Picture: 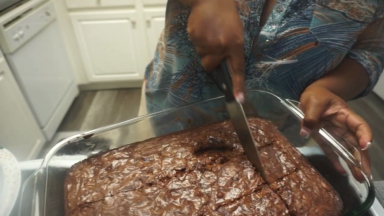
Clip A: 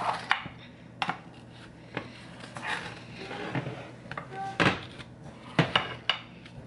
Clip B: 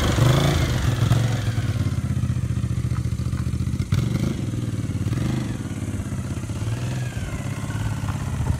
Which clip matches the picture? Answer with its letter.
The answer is A